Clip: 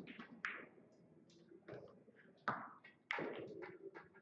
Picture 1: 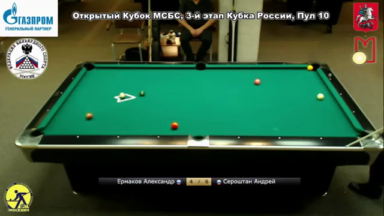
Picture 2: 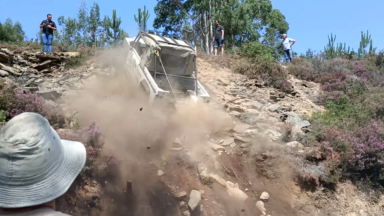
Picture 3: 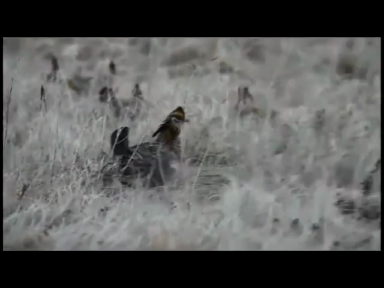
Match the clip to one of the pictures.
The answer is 1